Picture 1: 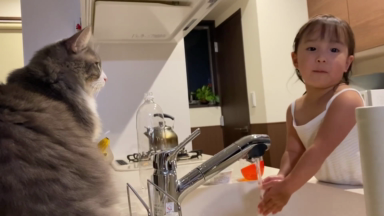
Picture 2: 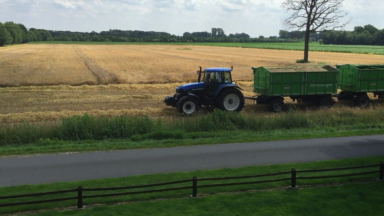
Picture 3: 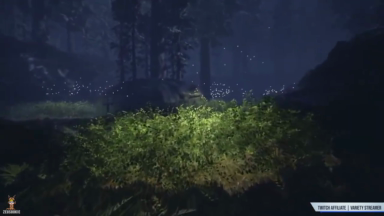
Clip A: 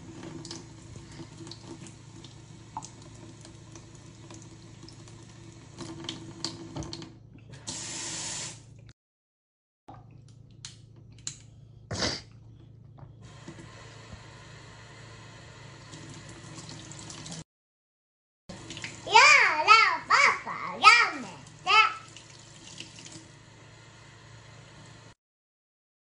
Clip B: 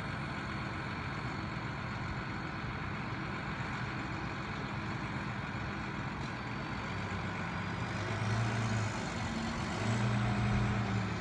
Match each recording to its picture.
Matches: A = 1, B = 2